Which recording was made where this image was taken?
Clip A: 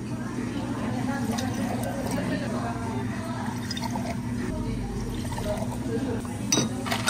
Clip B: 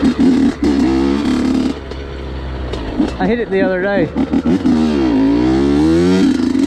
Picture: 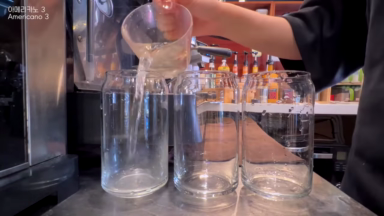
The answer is A